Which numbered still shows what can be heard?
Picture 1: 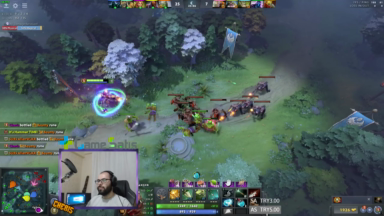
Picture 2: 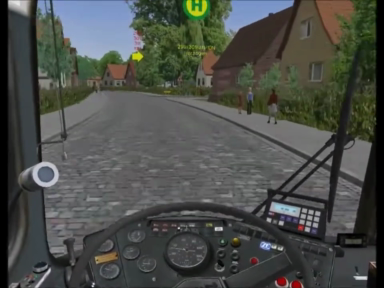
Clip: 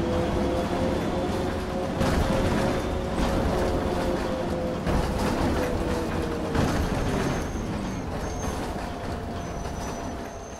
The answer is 2